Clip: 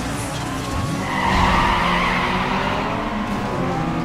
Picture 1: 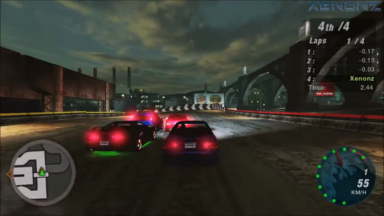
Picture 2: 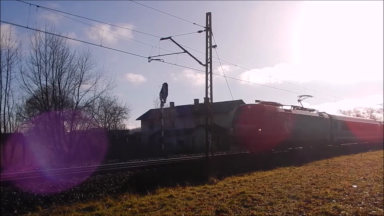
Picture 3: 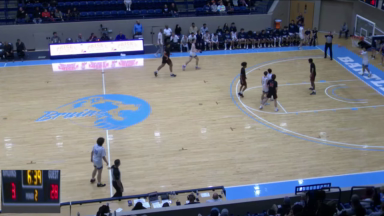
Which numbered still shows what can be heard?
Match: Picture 1